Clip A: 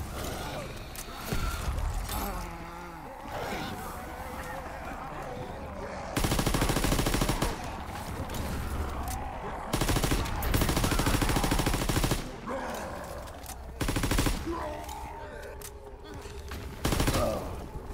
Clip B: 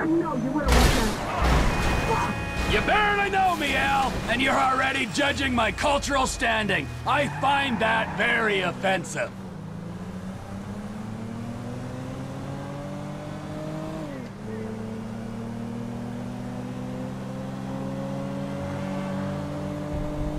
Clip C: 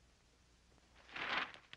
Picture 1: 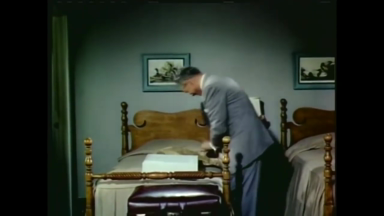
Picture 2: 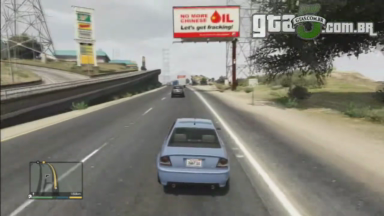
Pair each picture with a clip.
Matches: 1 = C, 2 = B